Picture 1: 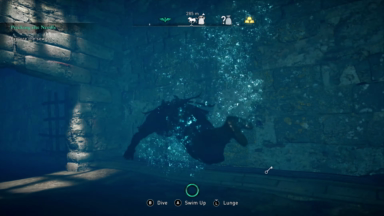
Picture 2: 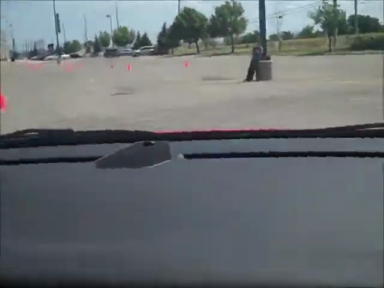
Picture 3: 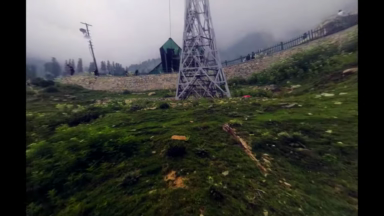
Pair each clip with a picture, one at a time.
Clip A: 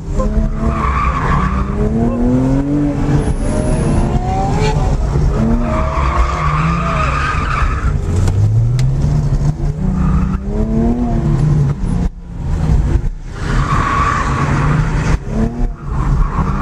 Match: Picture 2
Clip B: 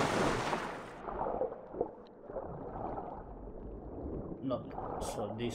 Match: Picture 1